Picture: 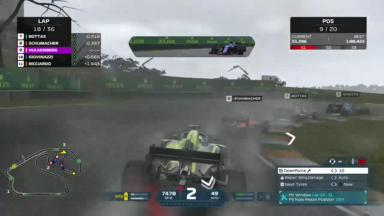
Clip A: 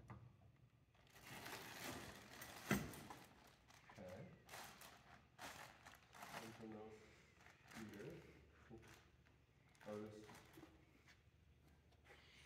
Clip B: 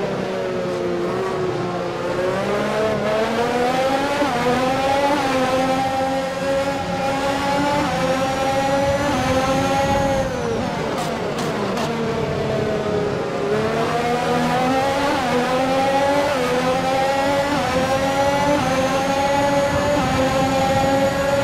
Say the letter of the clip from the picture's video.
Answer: B